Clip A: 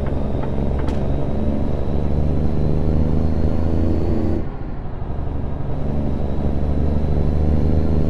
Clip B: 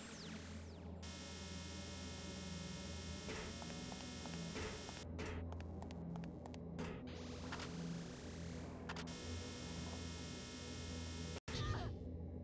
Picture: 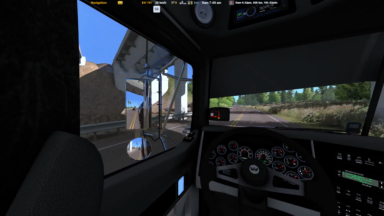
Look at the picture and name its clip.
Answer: A